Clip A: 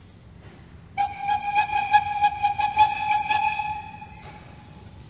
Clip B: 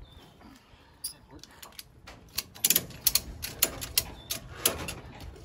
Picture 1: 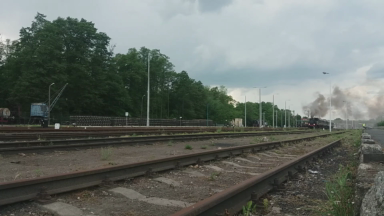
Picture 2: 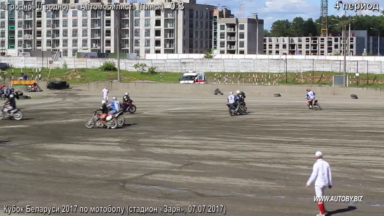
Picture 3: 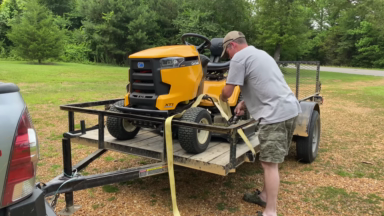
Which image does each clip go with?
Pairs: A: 1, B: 3